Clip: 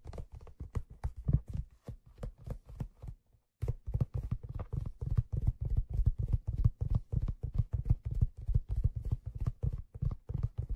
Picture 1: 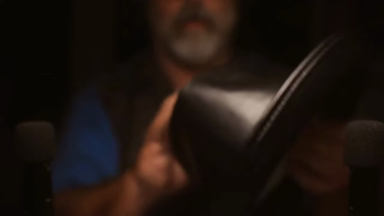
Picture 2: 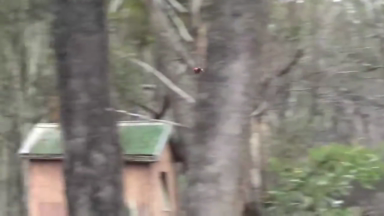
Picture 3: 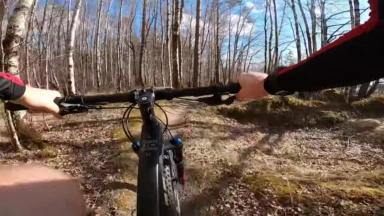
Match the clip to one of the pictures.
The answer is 1